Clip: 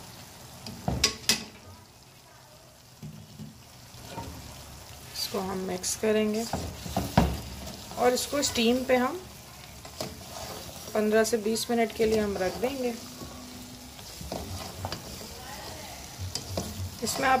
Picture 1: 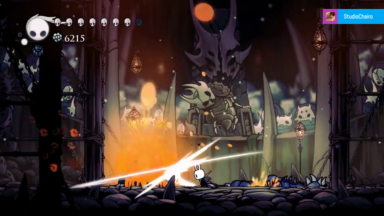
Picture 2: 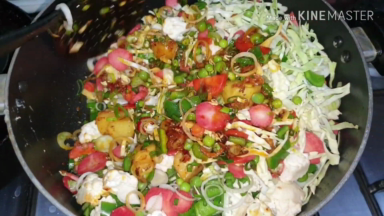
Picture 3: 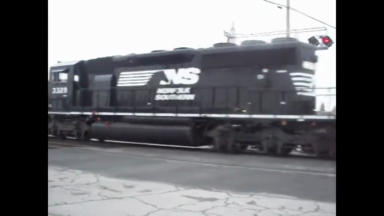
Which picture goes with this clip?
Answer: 2